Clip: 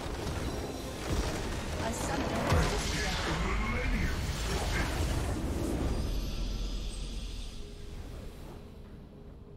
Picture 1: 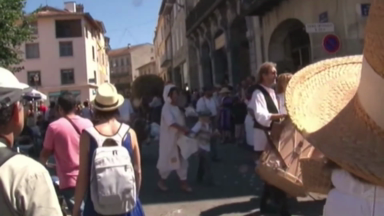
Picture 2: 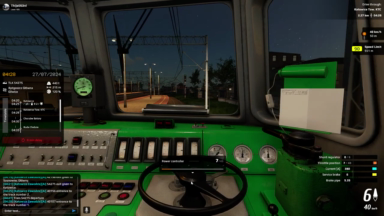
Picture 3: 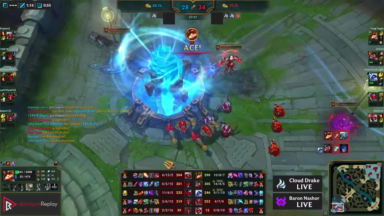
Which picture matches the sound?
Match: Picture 3